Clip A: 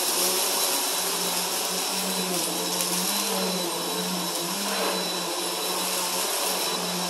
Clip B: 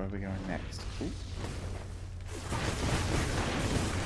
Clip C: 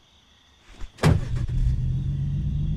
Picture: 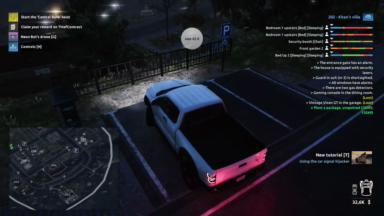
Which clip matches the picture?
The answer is C